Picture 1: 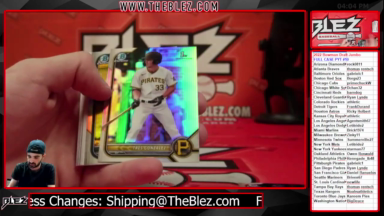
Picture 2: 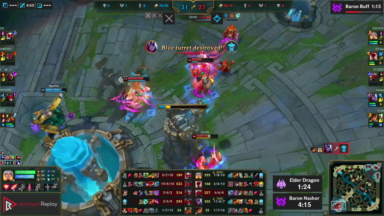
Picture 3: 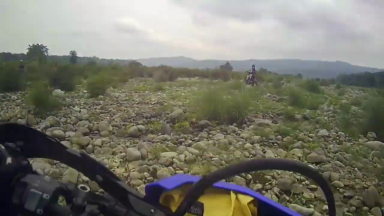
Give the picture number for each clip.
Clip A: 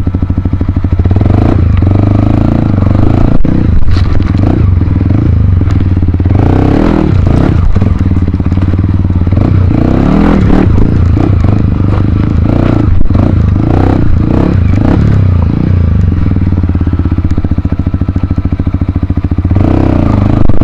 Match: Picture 3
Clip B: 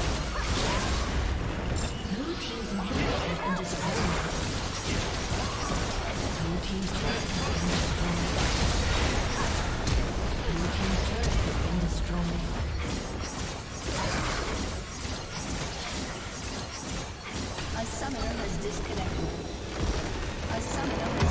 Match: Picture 2